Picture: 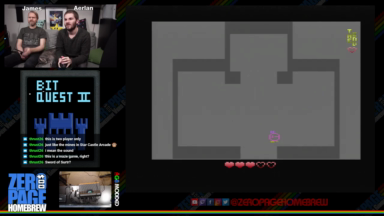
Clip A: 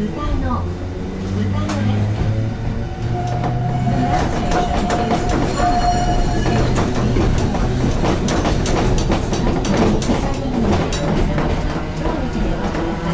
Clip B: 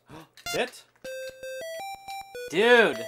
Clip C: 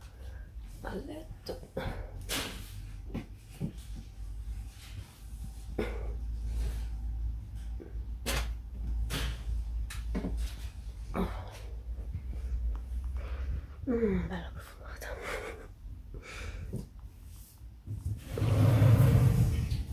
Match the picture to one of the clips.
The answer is B